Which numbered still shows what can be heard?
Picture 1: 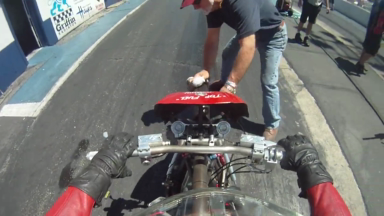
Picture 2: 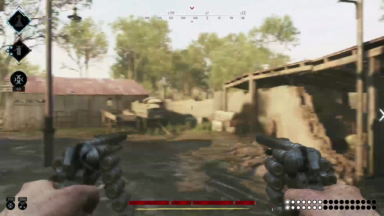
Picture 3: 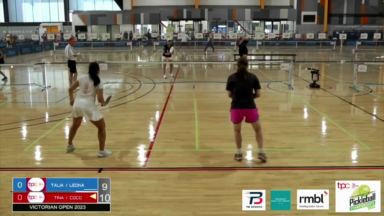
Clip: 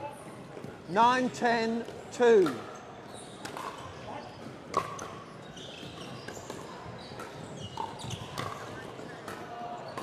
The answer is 3